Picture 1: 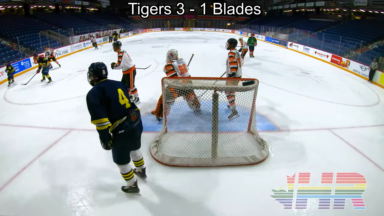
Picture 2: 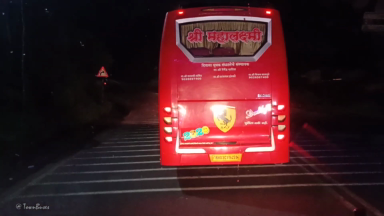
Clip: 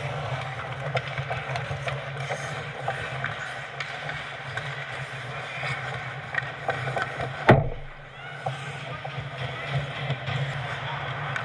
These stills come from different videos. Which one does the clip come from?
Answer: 1